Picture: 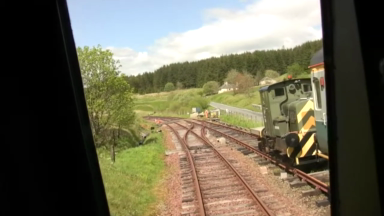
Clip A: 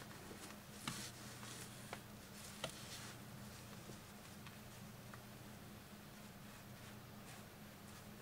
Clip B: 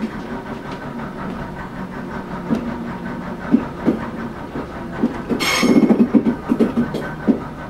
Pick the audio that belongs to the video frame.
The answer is B